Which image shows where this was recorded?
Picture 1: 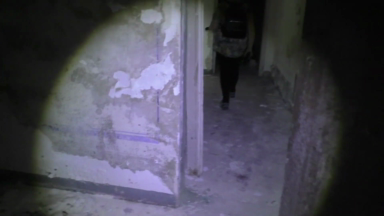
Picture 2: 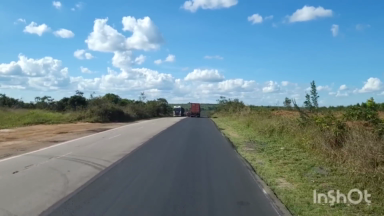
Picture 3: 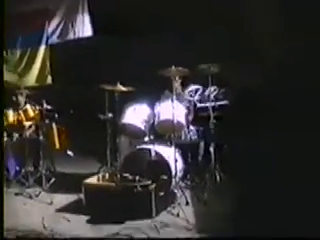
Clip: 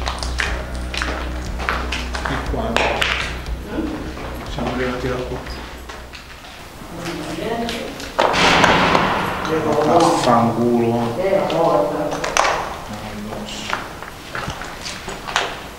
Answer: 1